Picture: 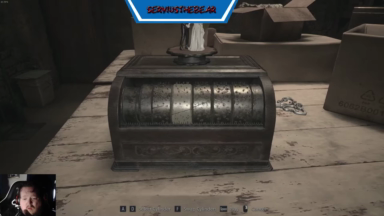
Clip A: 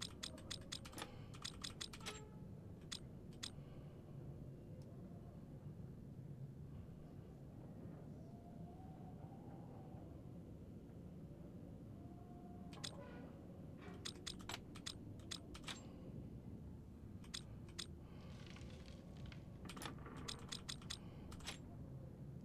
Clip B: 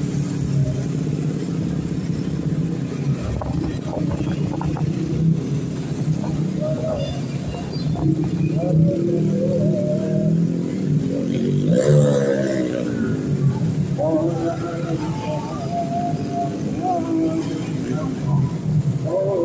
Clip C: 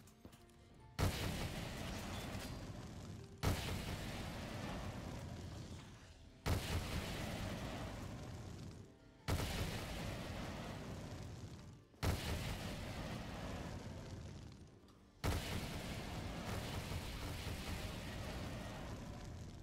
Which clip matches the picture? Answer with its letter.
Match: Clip A